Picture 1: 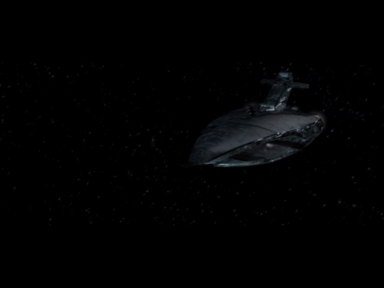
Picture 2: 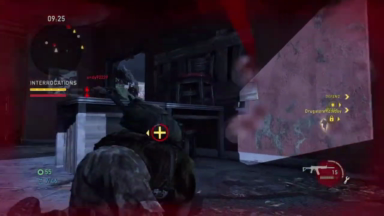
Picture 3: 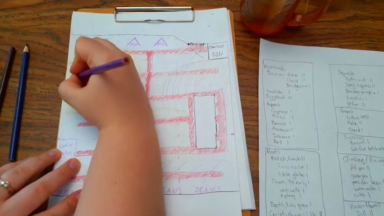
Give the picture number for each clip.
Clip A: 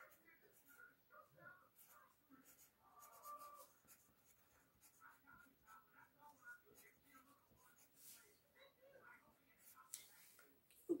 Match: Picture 3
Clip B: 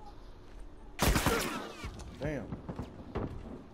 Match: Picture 2